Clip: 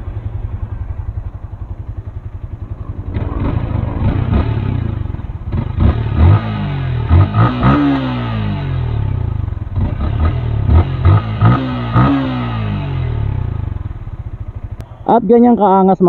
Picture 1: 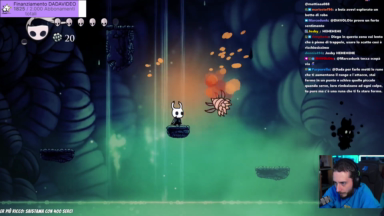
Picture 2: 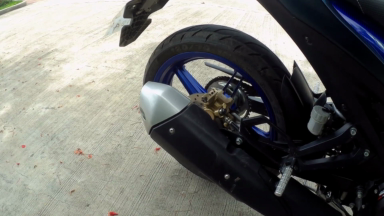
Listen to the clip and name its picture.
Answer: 2